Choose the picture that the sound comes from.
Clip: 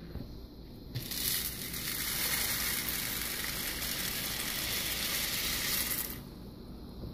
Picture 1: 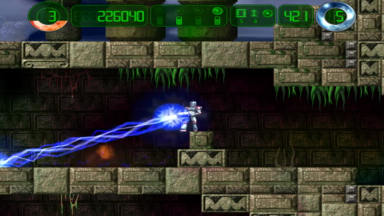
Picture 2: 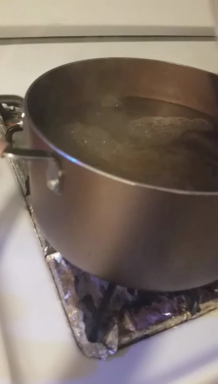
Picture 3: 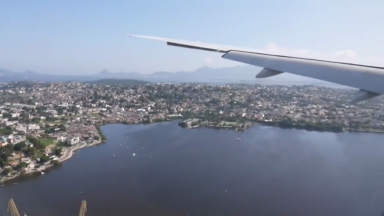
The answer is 2